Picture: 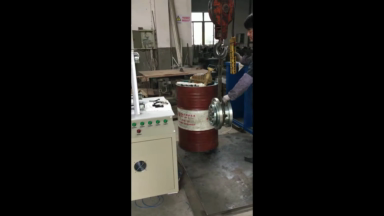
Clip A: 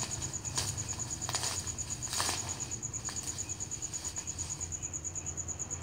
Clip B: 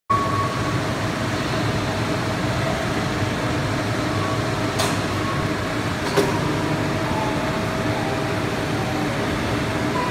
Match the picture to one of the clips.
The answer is B